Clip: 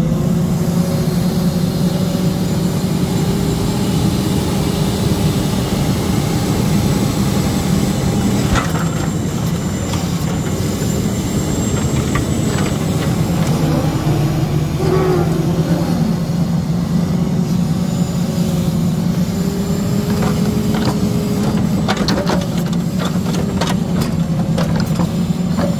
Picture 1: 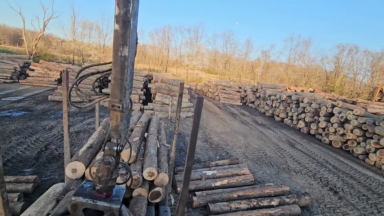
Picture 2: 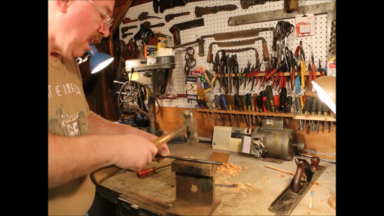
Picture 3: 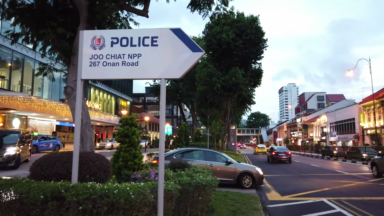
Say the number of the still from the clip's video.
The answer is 1